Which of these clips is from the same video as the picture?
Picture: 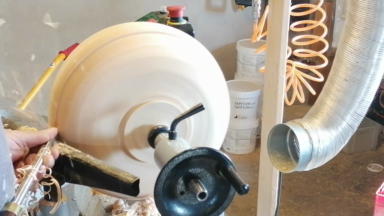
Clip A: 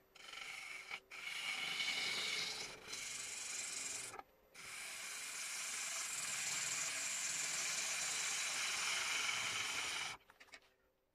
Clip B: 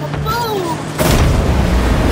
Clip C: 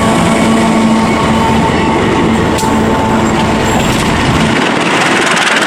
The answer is A